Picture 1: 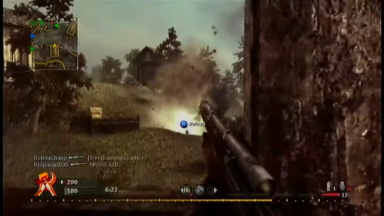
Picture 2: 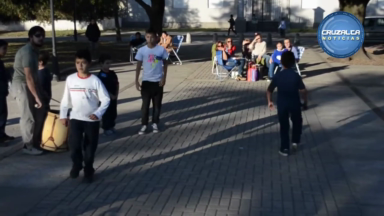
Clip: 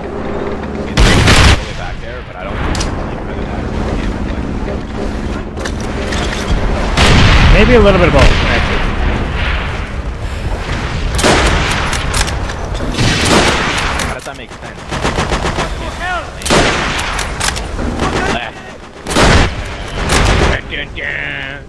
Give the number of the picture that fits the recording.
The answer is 1